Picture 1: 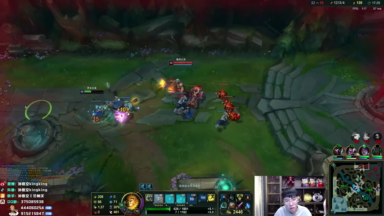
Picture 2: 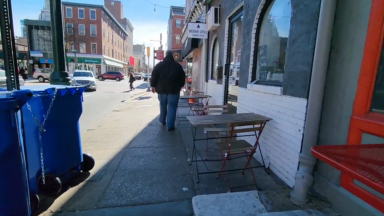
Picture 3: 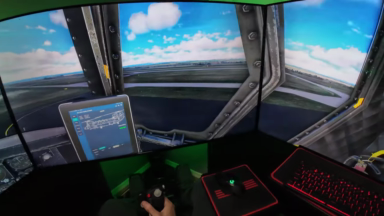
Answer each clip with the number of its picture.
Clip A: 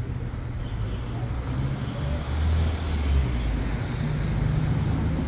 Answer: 2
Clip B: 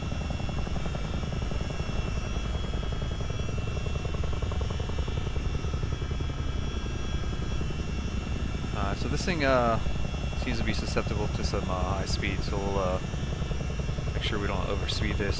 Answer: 3